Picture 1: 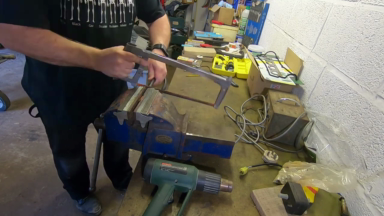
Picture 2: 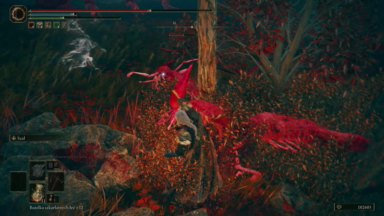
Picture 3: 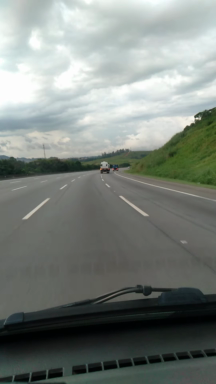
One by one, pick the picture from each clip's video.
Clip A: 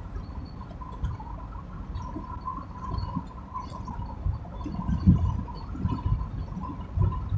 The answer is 3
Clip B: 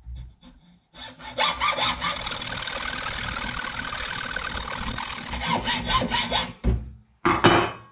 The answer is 1